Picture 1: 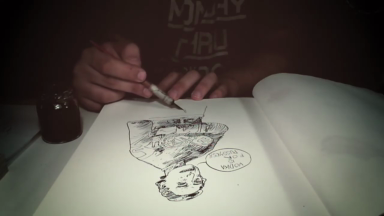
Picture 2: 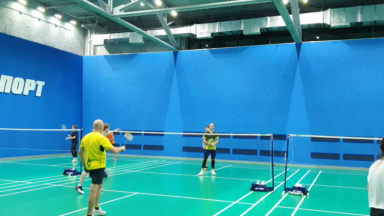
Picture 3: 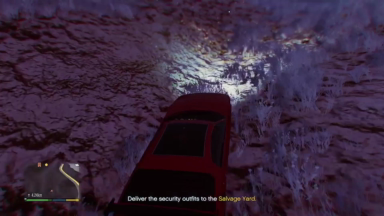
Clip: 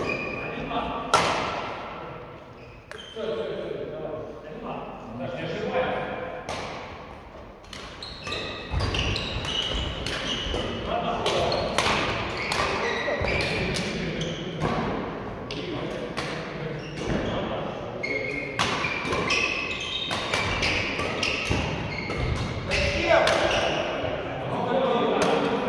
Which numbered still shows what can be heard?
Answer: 2